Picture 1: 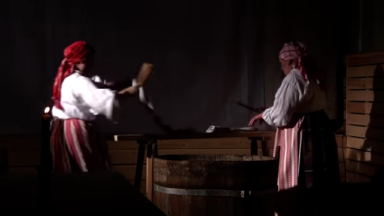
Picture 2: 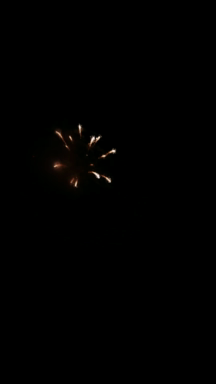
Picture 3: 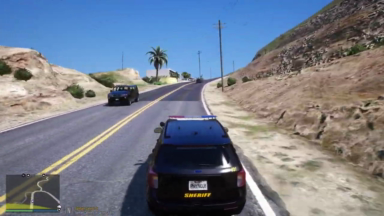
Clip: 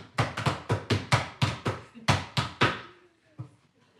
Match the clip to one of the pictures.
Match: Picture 1